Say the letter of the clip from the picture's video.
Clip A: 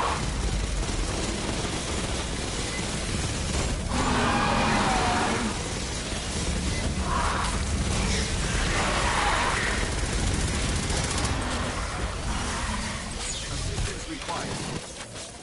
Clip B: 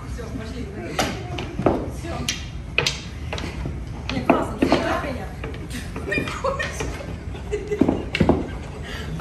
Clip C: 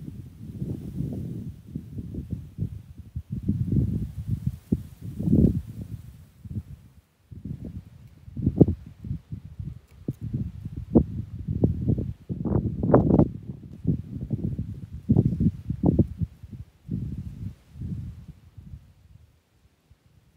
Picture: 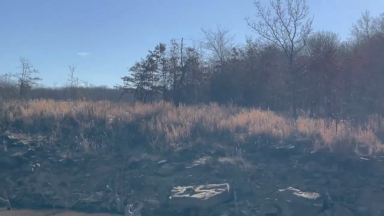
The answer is C